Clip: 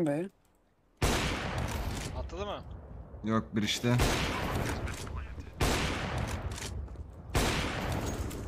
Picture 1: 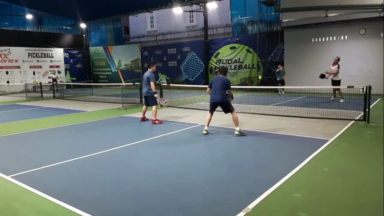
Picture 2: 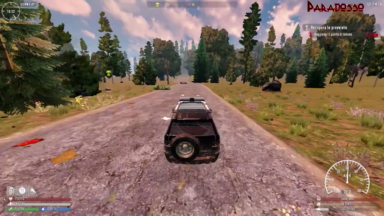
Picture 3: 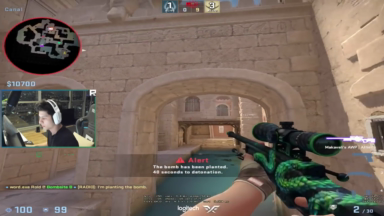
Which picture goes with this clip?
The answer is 3